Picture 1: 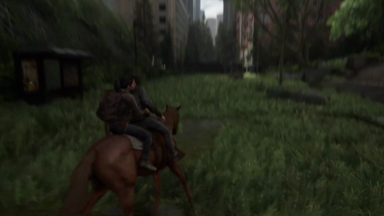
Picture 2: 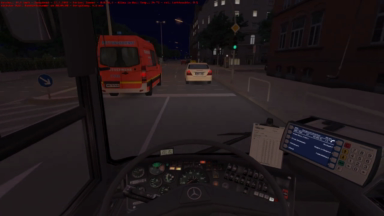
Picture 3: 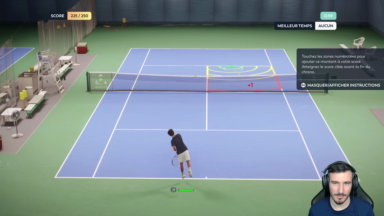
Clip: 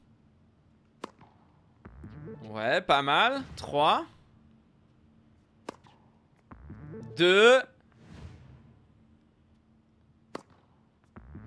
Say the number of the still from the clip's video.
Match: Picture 3